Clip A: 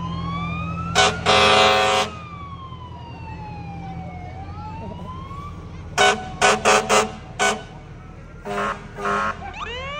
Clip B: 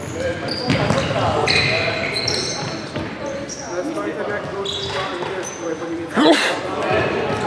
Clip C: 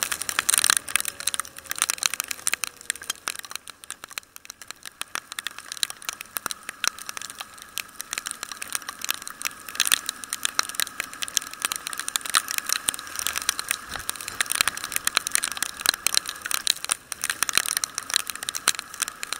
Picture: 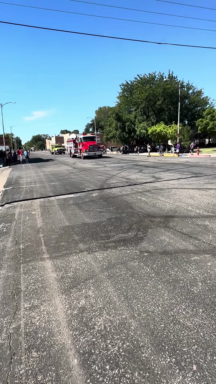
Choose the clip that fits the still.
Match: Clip A